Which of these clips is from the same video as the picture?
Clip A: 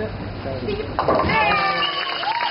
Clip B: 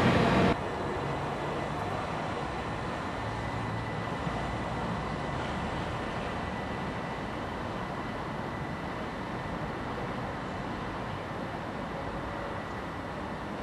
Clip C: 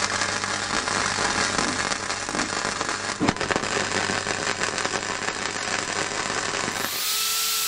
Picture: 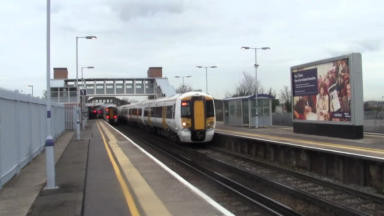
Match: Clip B